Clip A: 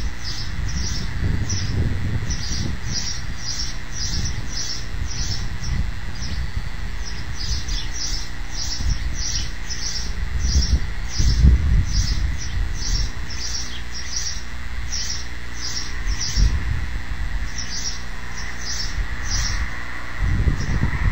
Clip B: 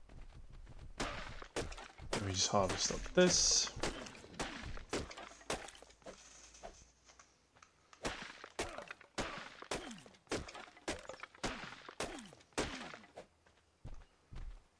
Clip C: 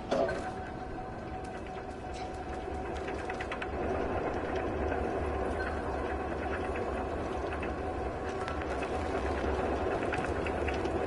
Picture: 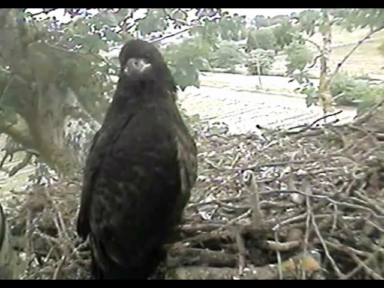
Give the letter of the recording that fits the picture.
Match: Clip A